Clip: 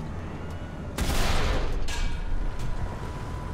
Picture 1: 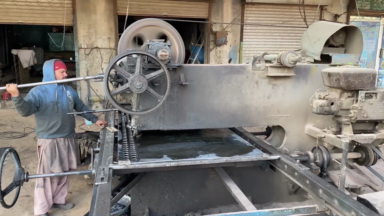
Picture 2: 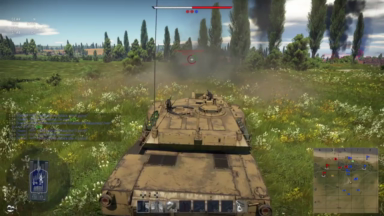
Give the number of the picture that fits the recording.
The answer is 2